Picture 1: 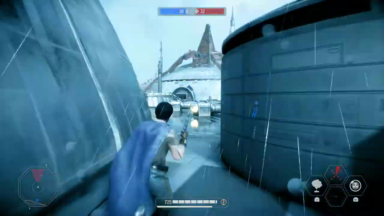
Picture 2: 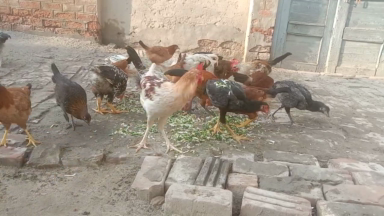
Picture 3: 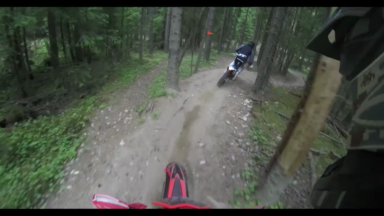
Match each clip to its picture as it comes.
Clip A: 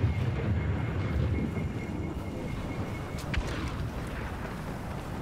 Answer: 1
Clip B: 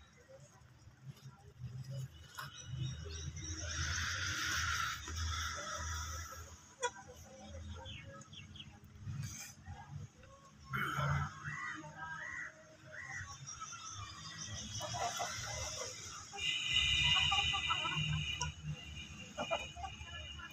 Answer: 2